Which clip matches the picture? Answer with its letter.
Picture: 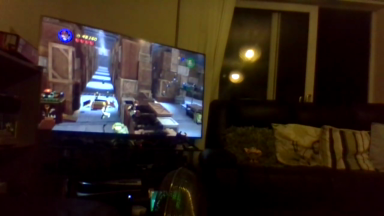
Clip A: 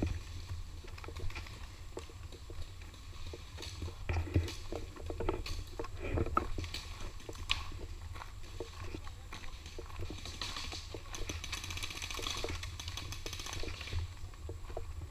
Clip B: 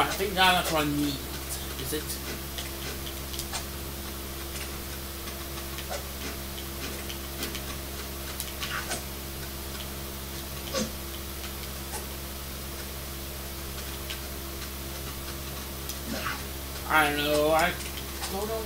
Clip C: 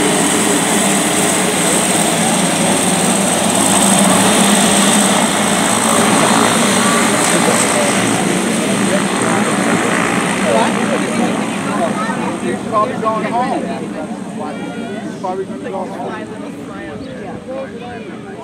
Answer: B